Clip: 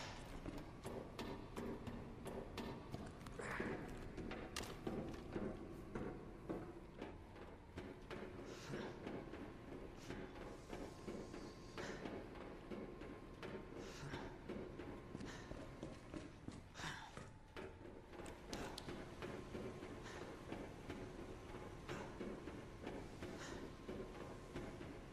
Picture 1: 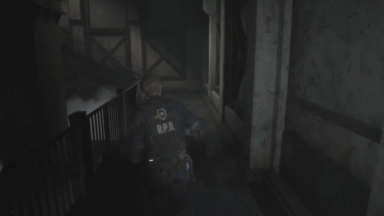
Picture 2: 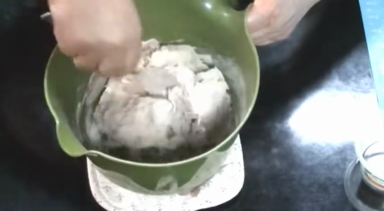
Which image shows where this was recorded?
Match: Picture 1